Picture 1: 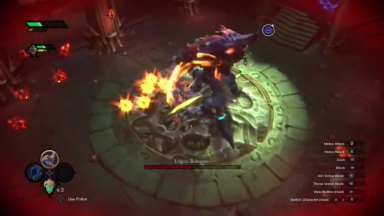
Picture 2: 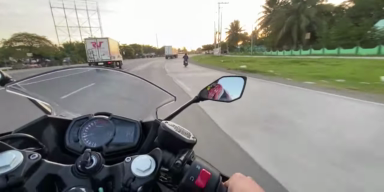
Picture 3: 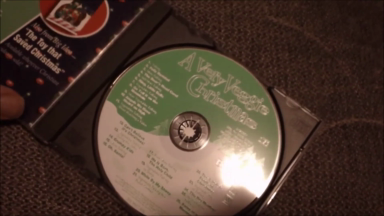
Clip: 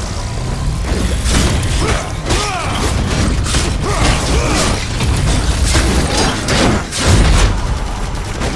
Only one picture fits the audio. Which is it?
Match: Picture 1